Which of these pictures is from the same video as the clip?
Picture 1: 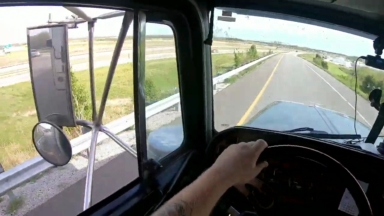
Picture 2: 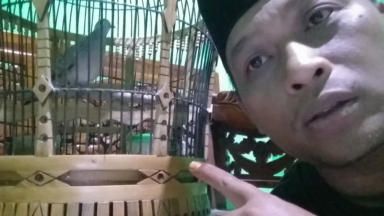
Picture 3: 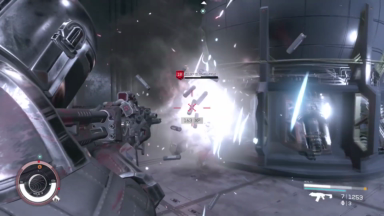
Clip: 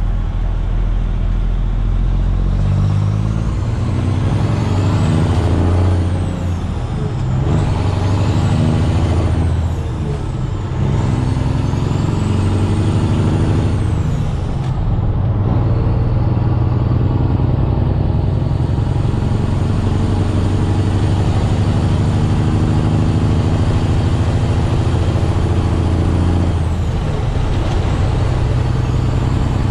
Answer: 1